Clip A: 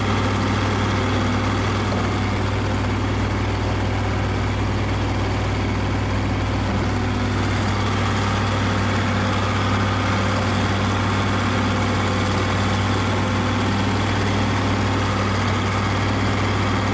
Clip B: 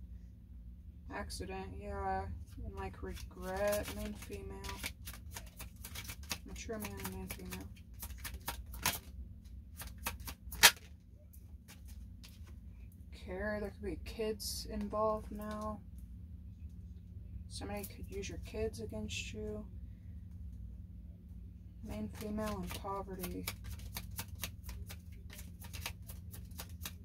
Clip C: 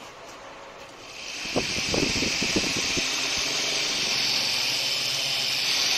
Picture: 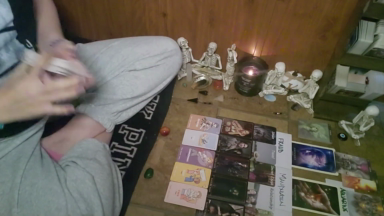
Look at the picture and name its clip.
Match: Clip B